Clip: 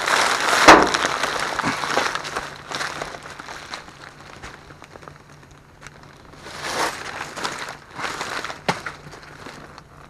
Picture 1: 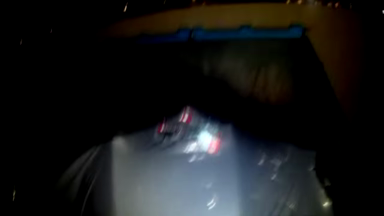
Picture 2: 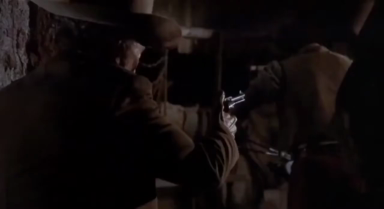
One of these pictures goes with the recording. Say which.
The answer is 1